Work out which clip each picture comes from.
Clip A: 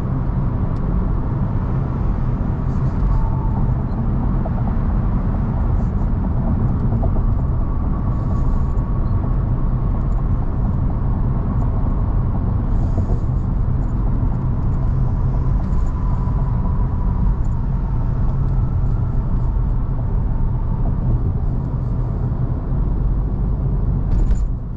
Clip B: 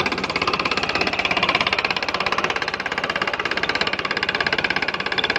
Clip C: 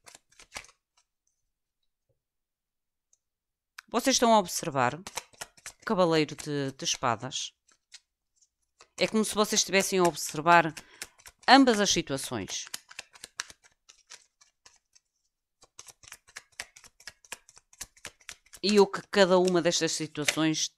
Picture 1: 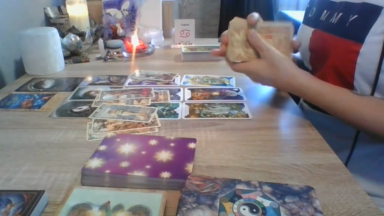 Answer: C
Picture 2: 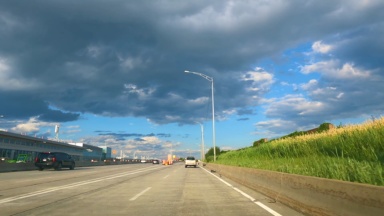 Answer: A